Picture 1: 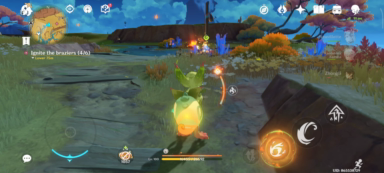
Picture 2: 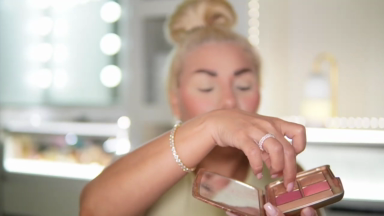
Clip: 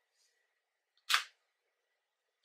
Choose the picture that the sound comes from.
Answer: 2